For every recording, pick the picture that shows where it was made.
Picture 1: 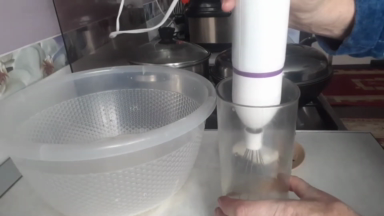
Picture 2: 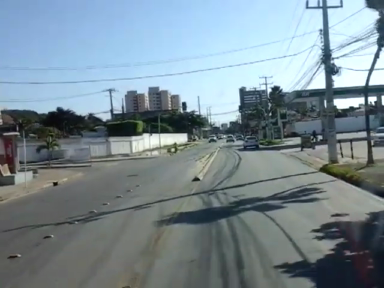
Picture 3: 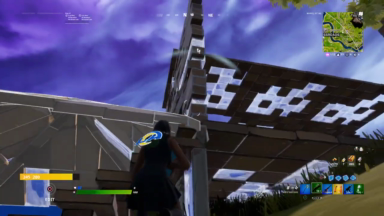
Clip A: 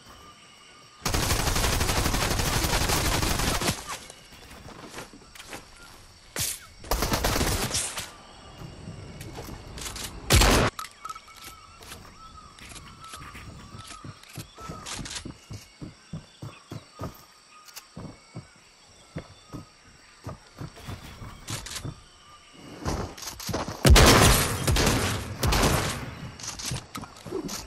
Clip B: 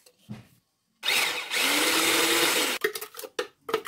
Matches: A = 3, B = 1